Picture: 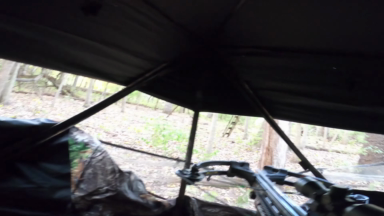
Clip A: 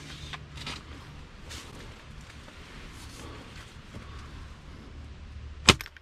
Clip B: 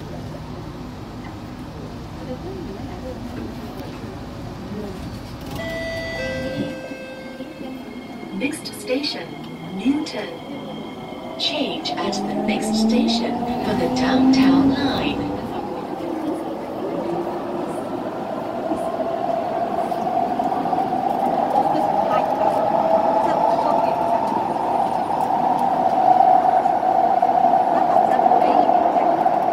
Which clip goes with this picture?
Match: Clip A